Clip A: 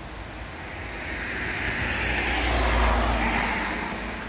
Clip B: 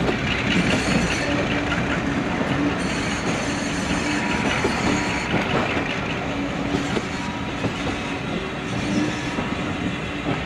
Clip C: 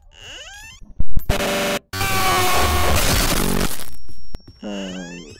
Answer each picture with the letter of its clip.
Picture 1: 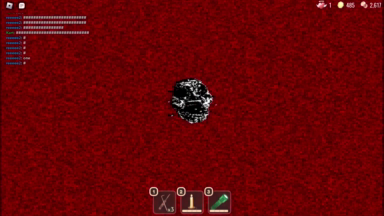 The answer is C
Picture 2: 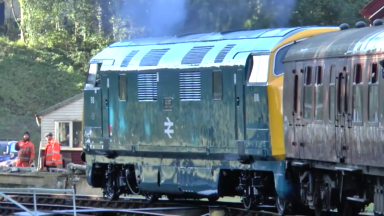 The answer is B